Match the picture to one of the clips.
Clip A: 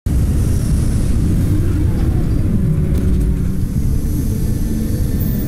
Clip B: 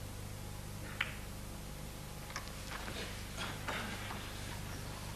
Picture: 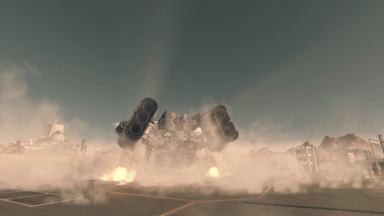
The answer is A